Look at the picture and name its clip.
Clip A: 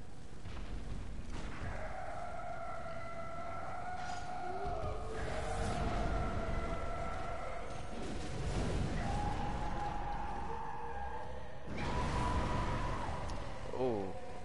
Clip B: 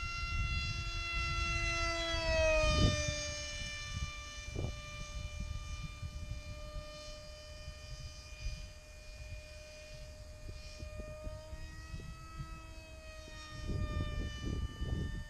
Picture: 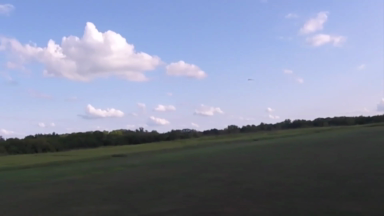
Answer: B